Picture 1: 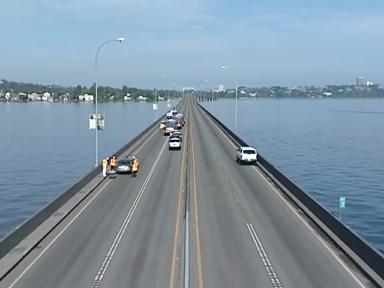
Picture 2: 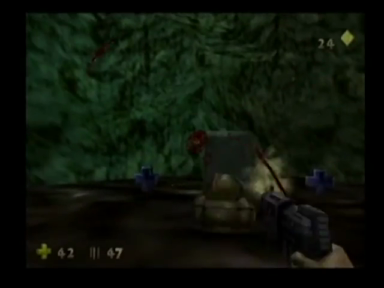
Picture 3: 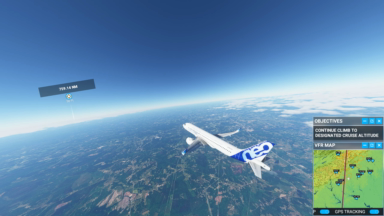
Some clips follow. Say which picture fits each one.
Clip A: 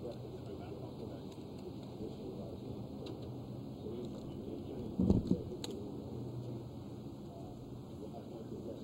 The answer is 1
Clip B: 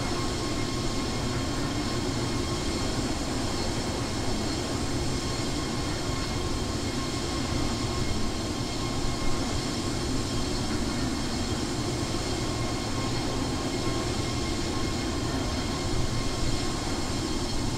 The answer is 3